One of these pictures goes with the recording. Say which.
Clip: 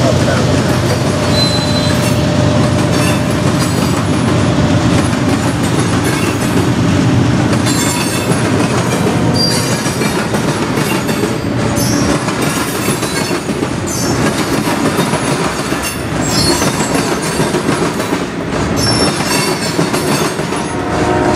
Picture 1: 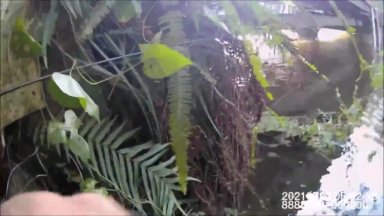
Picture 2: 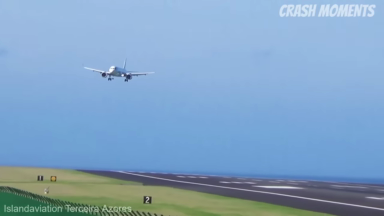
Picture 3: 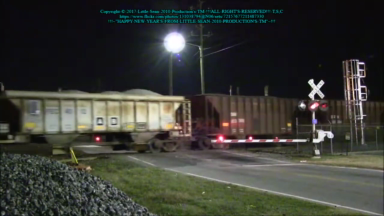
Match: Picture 3